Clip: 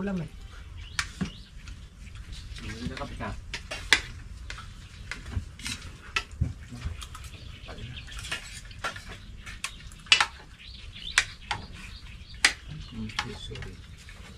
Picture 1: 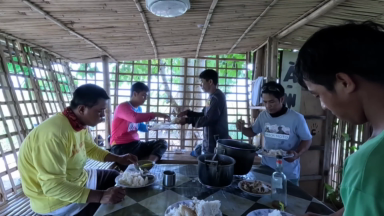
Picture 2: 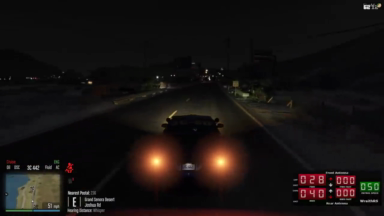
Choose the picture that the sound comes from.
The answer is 1